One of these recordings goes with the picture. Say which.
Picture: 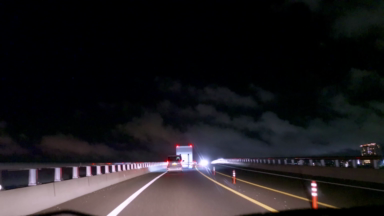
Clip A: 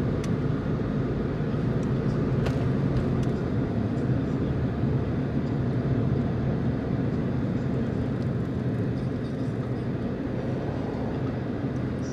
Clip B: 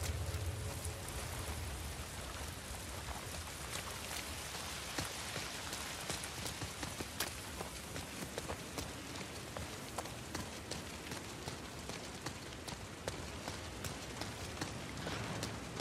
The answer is A